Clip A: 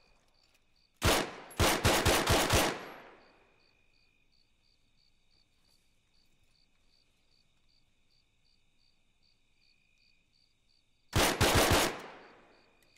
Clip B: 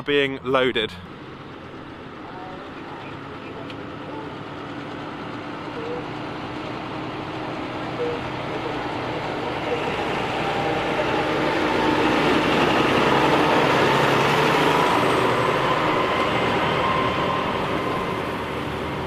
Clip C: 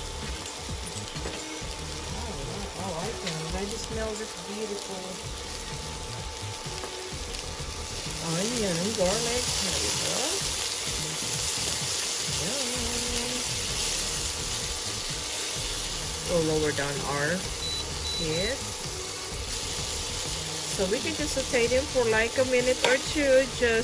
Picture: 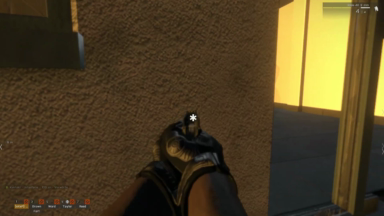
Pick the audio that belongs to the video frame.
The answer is A